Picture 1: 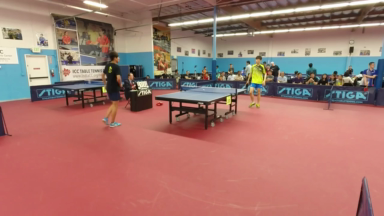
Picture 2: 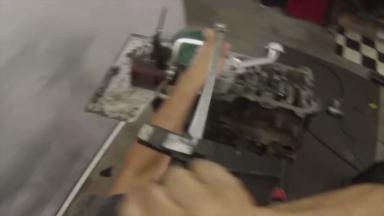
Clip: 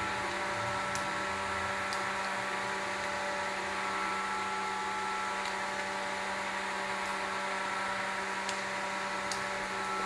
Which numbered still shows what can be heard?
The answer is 2